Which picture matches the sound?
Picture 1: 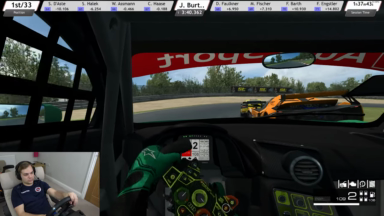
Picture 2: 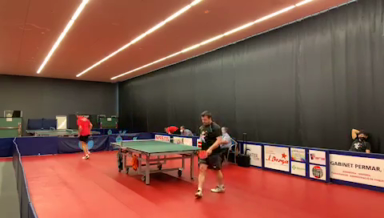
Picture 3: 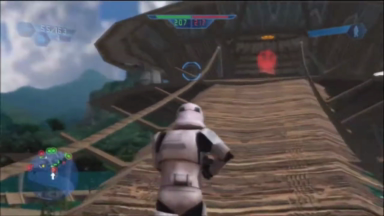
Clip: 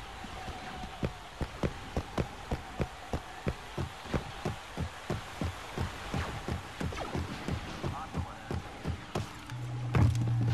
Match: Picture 3